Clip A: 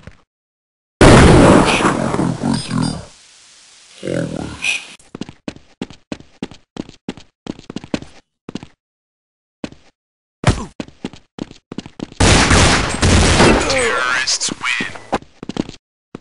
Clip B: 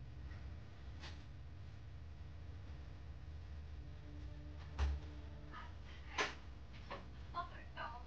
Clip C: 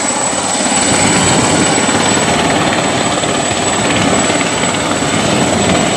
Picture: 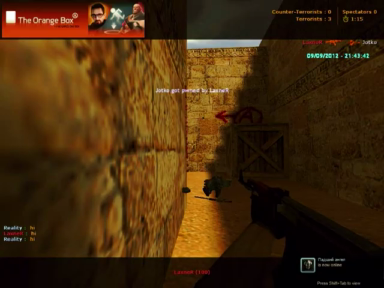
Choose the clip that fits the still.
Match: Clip A